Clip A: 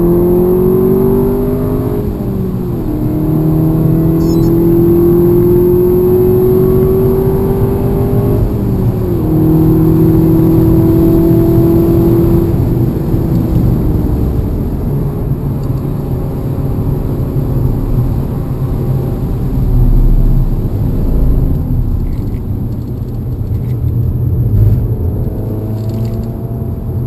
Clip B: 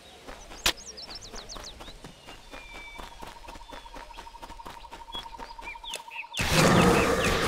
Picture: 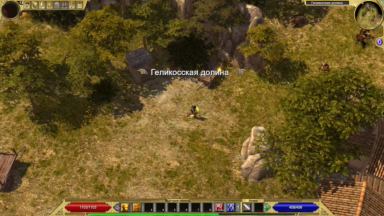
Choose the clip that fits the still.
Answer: B